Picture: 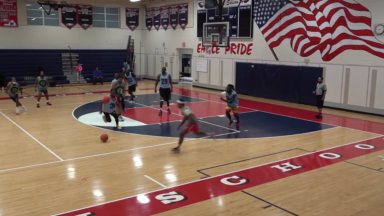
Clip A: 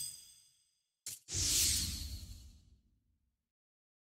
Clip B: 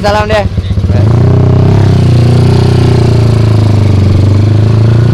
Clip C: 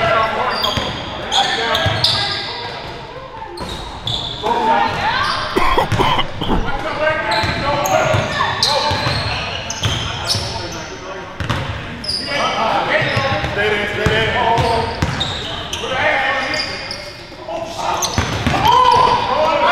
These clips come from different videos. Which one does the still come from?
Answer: C